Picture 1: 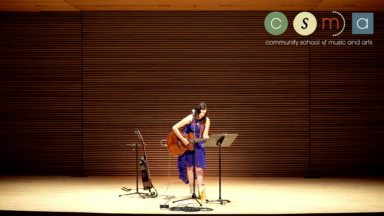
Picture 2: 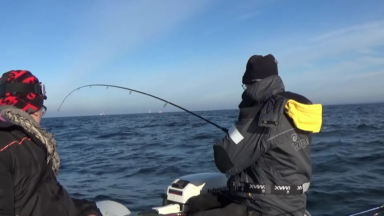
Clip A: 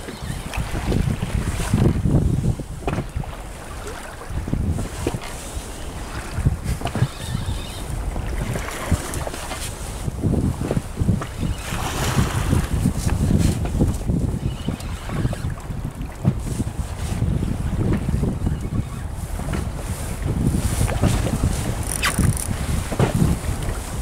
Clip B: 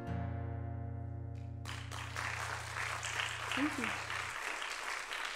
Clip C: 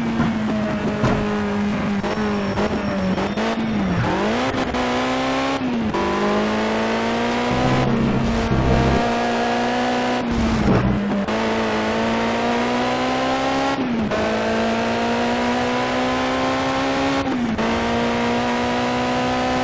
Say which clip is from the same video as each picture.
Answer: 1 B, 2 A